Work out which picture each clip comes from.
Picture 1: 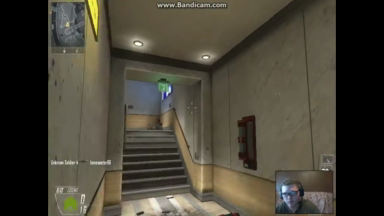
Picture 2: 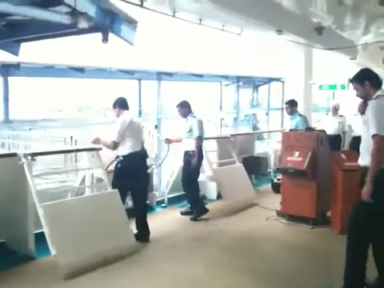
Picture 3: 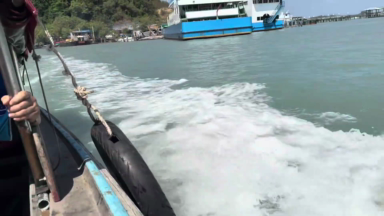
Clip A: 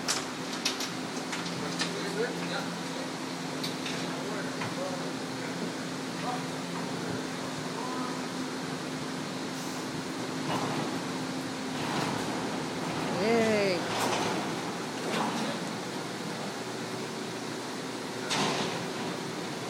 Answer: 2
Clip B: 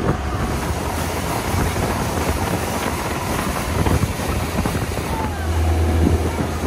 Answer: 3